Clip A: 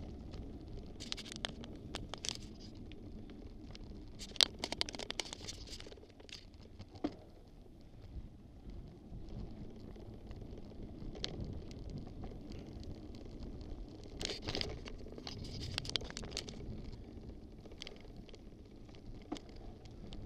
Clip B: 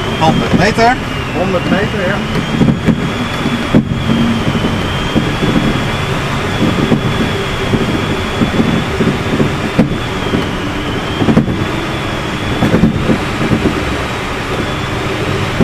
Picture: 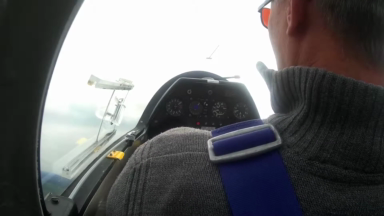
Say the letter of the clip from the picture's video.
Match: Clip B